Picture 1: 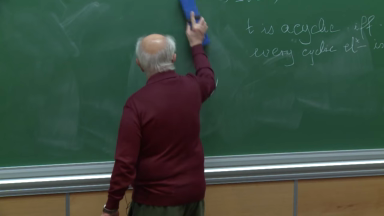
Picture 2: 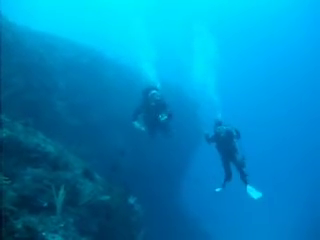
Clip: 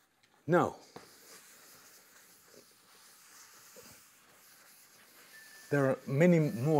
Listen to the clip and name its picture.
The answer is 1